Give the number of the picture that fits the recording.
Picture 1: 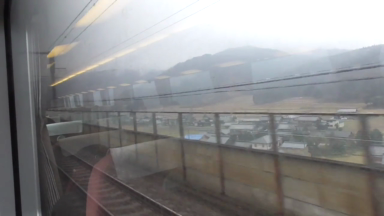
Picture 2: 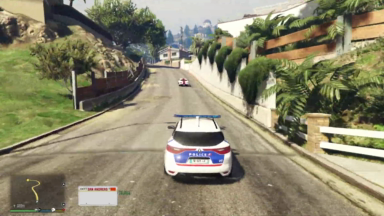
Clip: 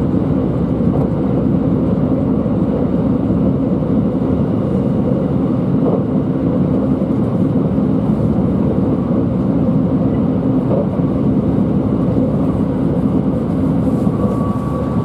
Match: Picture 1